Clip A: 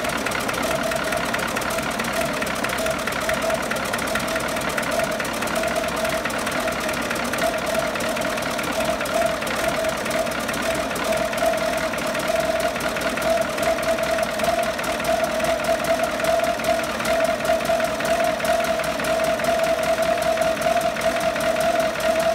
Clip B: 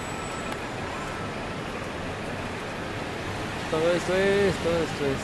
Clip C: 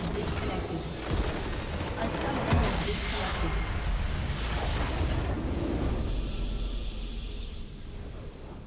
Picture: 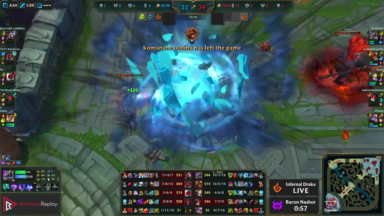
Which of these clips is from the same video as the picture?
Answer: C